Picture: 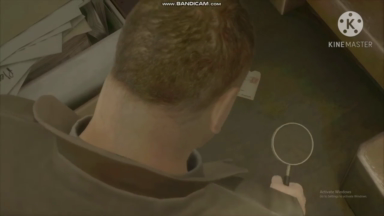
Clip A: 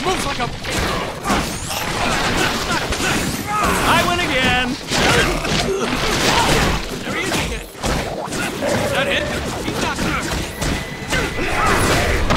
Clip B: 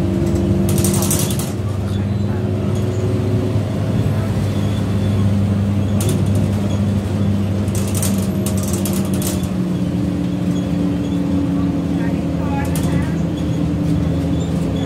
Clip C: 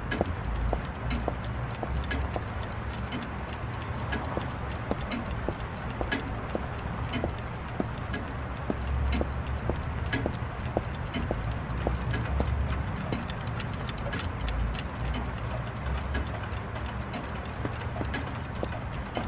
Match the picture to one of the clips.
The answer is C